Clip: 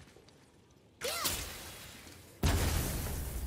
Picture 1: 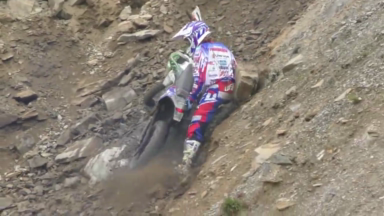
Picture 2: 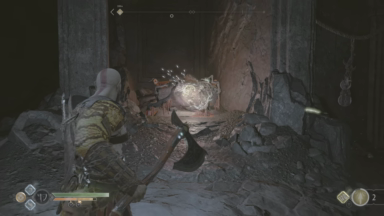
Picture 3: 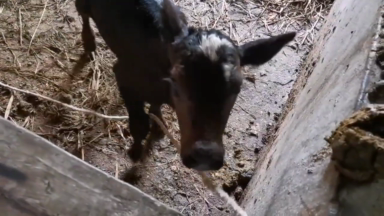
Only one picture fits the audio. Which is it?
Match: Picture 2